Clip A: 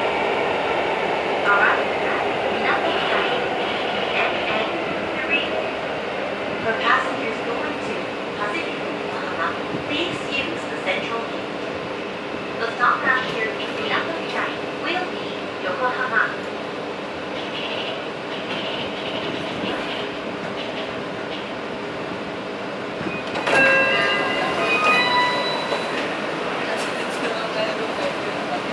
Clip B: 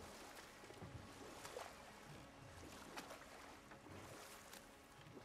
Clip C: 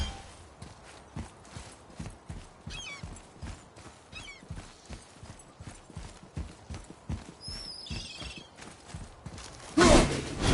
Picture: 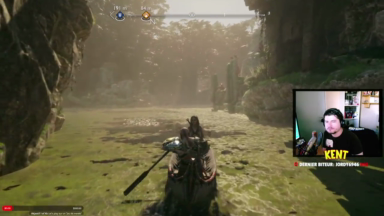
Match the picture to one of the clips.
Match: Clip B